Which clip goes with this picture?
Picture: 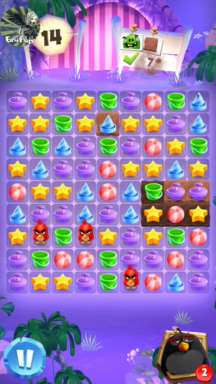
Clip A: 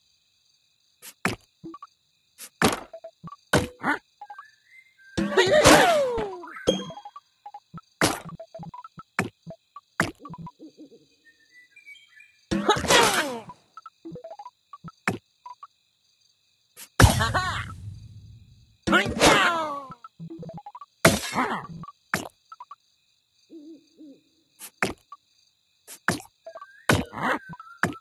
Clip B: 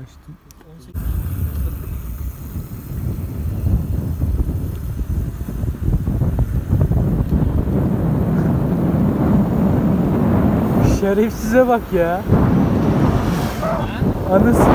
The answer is A